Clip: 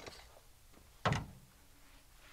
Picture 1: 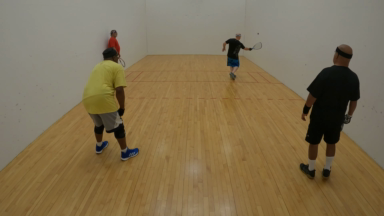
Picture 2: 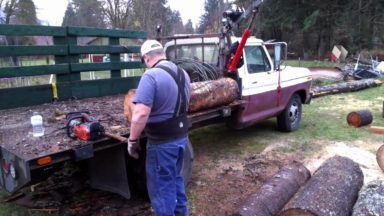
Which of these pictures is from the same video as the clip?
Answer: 2